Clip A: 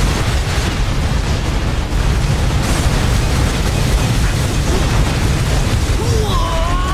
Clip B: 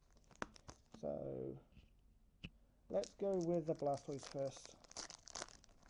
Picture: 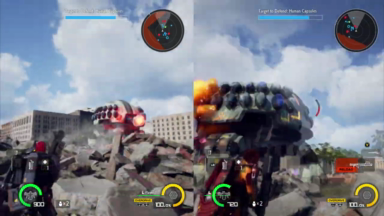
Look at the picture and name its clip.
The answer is A